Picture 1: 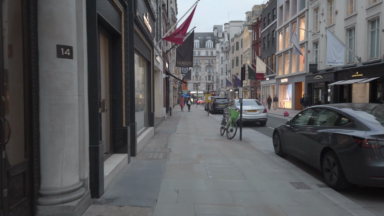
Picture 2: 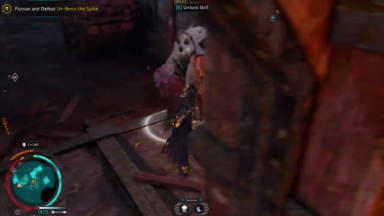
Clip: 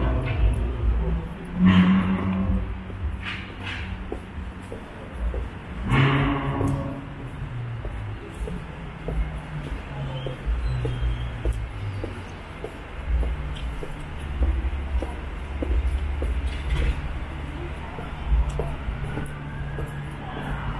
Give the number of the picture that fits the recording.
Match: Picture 1